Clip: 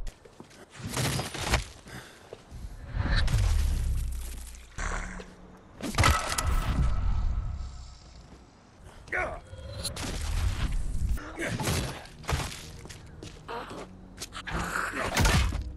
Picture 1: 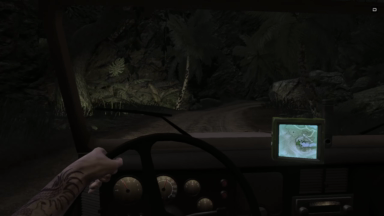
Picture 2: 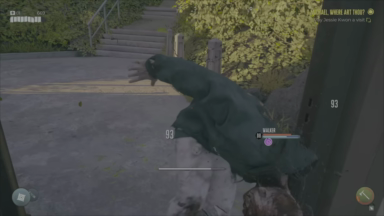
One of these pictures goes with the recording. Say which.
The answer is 2